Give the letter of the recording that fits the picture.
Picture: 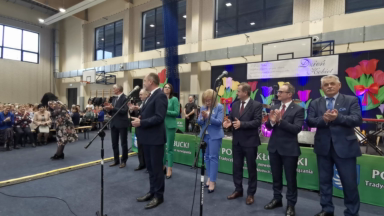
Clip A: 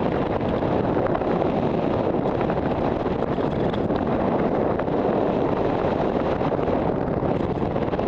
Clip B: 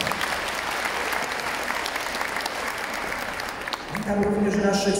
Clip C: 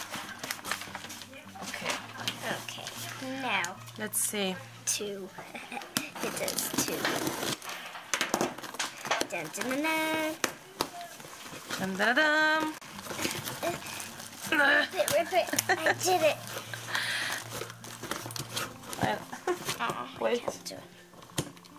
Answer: B